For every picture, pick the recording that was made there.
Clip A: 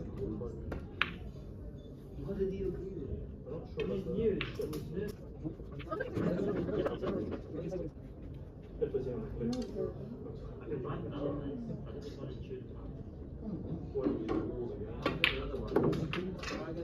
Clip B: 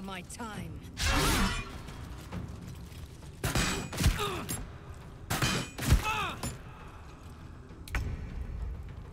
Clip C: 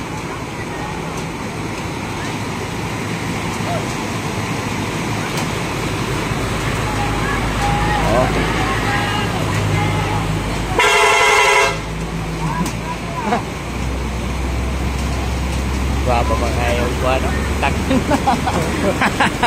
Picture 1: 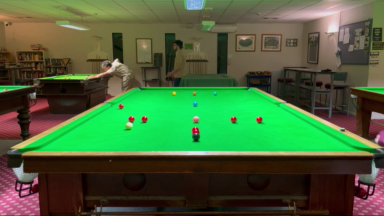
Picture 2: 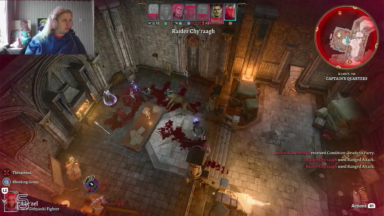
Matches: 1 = A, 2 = B